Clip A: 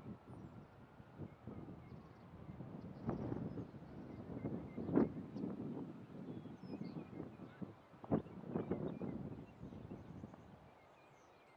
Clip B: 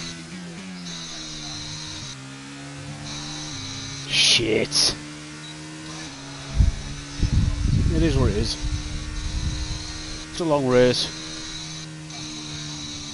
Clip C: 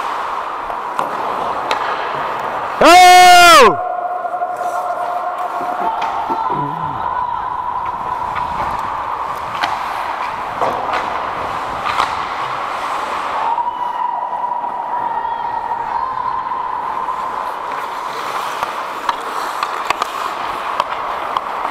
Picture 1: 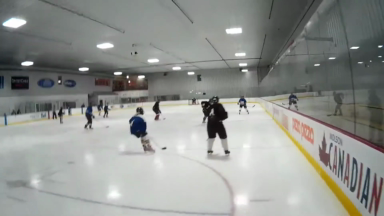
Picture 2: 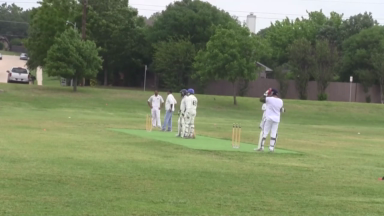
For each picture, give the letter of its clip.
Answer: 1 C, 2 A